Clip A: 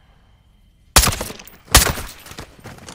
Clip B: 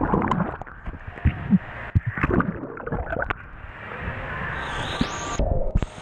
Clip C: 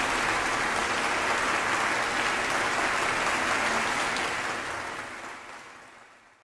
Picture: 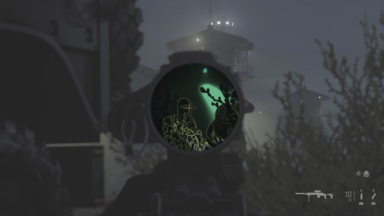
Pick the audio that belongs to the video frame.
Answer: A